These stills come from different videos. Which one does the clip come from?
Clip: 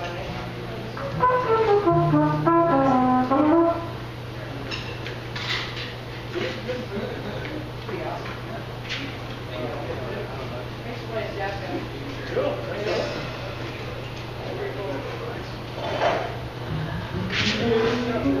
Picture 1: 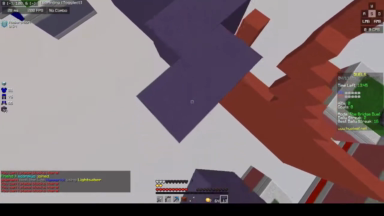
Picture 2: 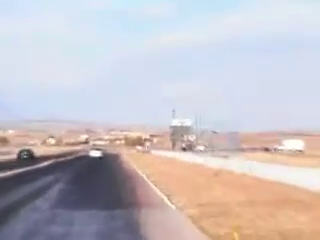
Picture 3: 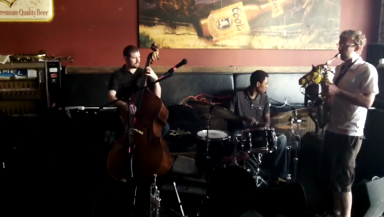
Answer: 3